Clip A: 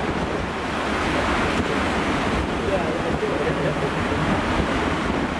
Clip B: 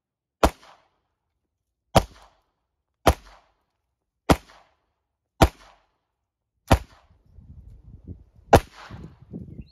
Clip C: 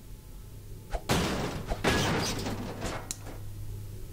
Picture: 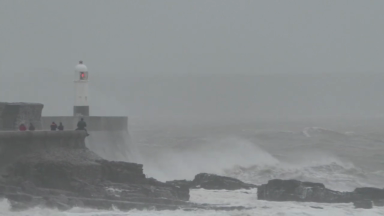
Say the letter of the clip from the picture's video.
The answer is A